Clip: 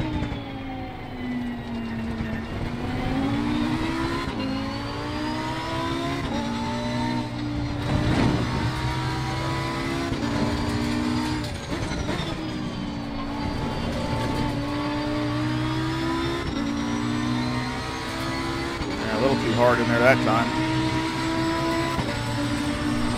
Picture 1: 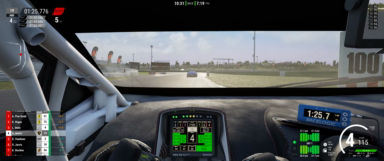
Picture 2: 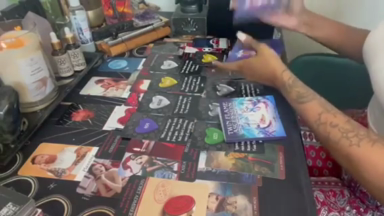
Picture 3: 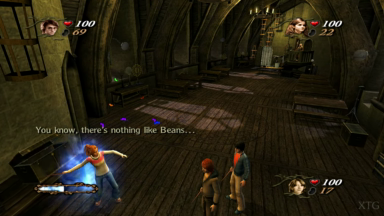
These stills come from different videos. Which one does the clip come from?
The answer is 1